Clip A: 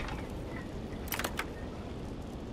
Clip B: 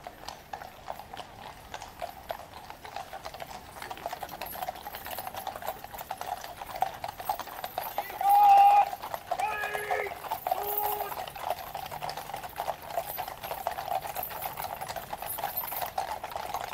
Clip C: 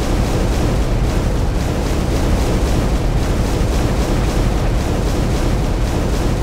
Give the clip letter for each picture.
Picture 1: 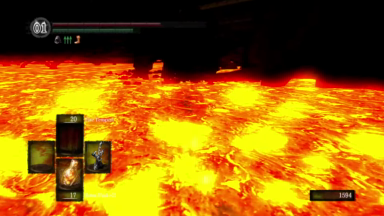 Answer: C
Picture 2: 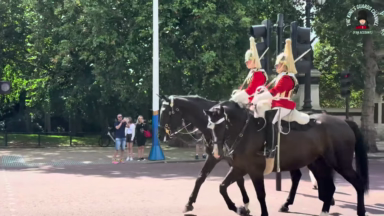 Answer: B